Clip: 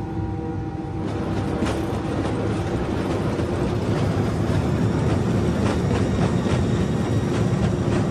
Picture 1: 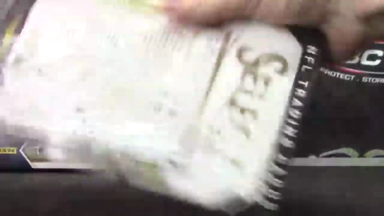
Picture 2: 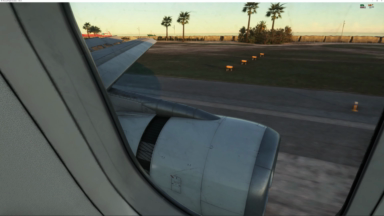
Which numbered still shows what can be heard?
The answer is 2